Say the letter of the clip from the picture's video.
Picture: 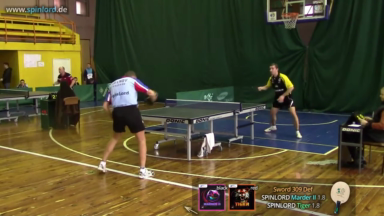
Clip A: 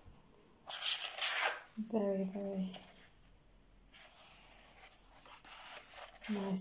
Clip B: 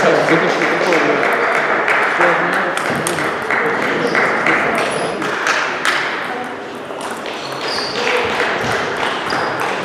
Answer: B